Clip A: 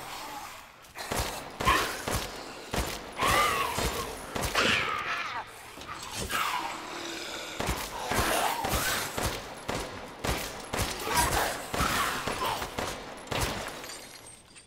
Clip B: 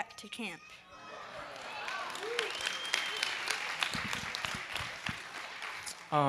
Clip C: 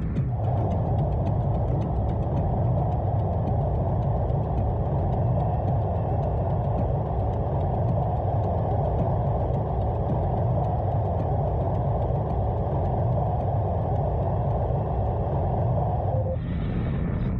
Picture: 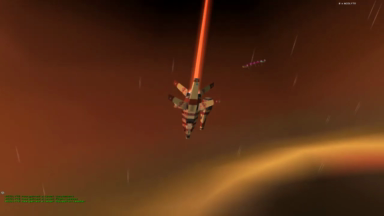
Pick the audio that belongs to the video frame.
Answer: C